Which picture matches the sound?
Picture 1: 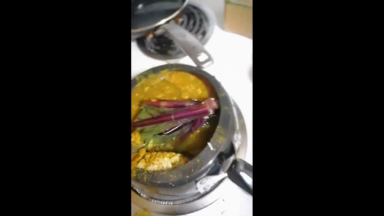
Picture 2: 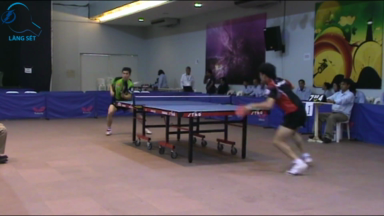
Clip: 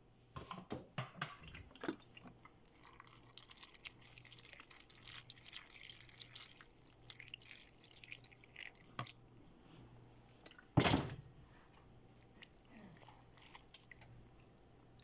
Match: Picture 1